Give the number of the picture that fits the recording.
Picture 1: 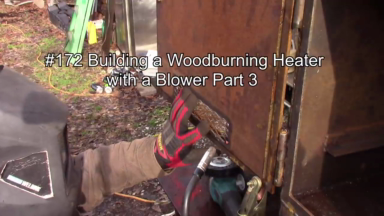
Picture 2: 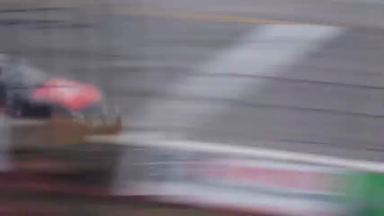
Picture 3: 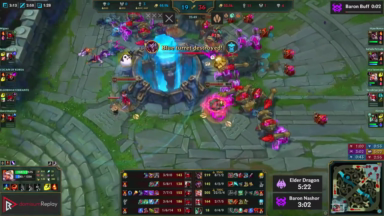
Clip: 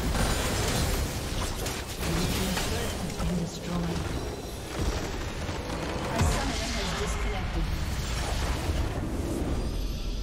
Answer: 3